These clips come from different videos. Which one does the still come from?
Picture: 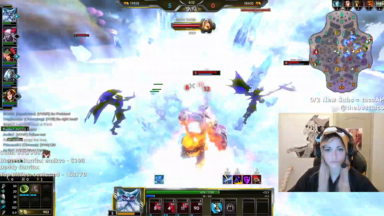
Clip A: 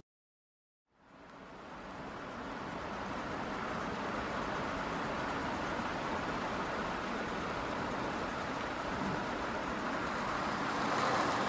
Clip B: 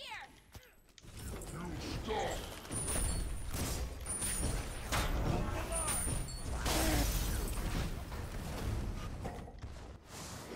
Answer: B